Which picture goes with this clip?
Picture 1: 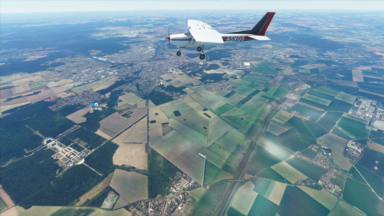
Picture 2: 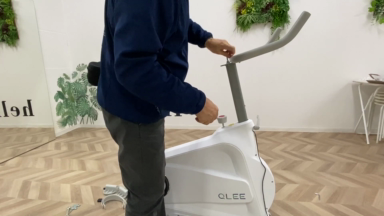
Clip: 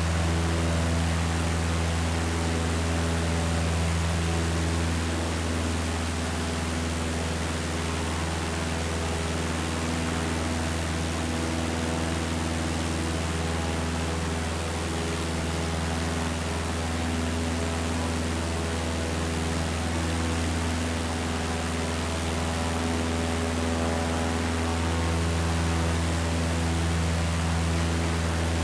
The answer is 1